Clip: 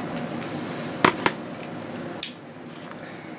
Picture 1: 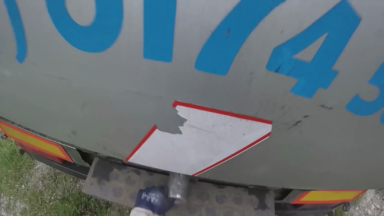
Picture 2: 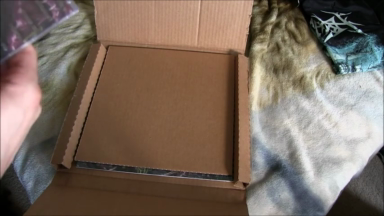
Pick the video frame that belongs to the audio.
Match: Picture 2